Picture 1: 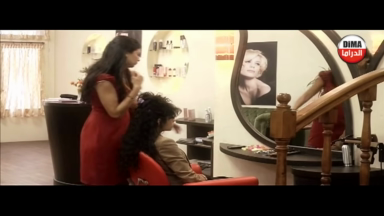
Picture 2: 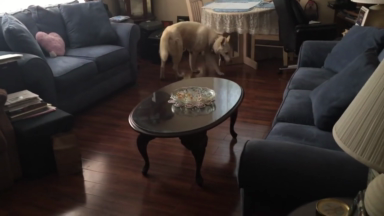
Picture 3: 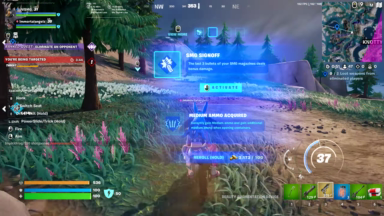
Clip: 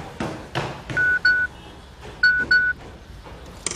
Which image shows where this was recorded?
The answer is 1